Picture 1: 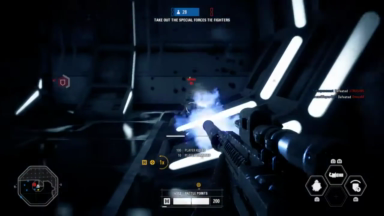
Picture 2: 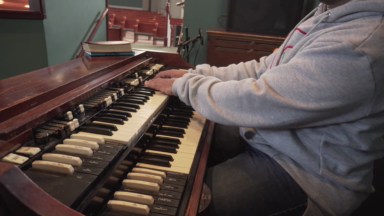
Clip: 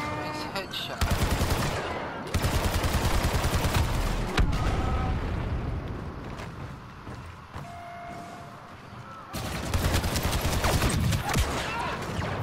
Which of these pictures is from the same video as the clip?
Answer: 1